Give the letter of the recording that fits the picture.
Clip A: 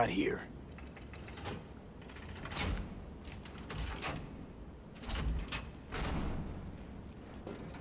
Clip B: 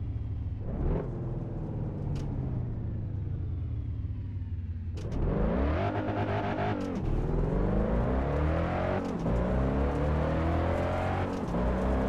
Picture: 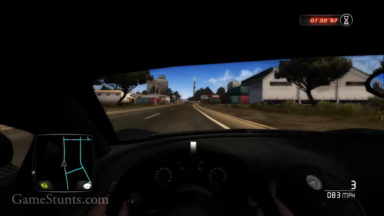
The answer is B